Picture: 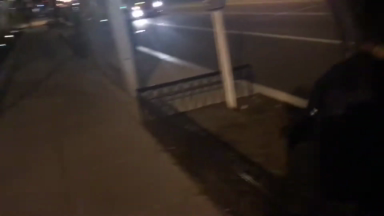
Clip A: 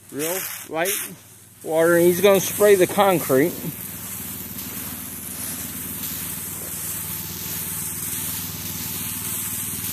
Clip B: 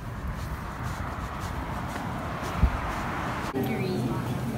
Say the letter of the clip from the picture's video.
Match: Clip B